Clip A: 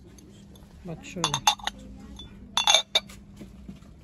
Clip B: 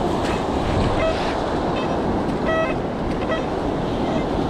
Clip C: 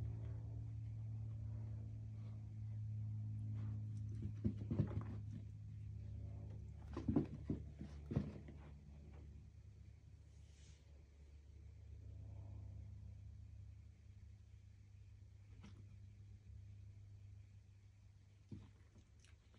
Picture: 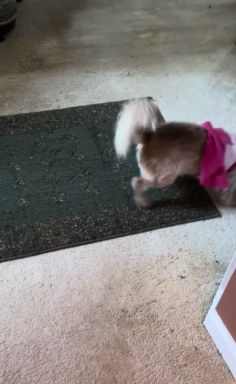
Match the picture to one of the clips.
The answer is C